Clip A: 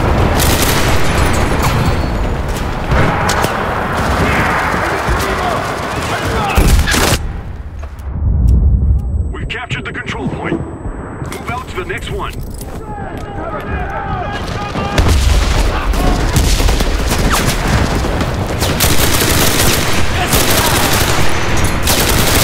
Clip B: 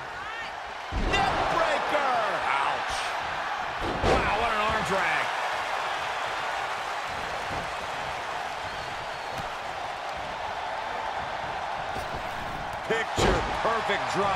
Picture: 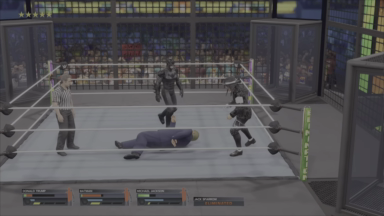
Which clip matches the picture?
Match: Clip B